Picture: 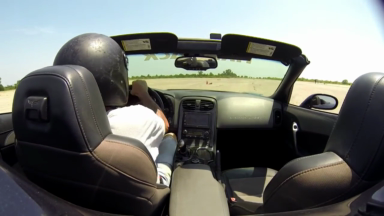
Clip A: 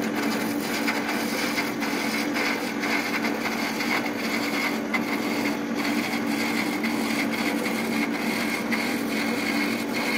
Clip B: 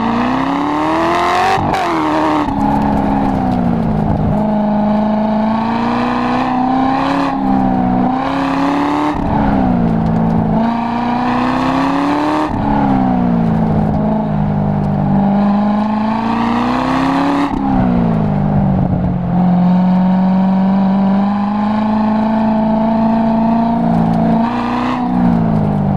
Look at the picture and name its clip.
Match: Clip B